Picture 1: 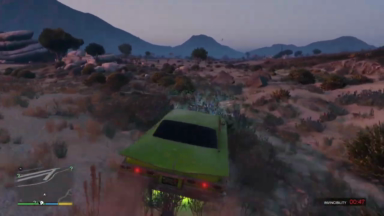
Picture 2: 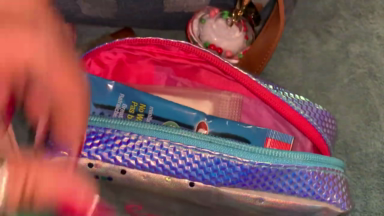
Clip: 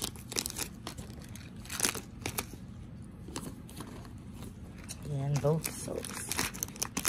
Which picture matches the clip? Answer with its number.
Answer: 2